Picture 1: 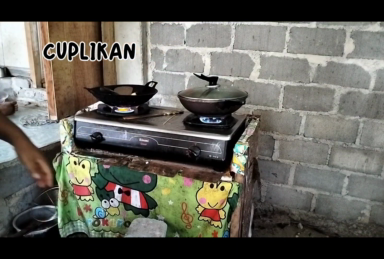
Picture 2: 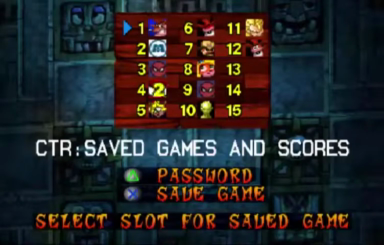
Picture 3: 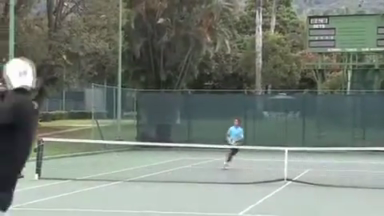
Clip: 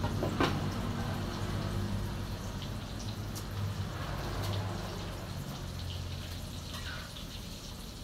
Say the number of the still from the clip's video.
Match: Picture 1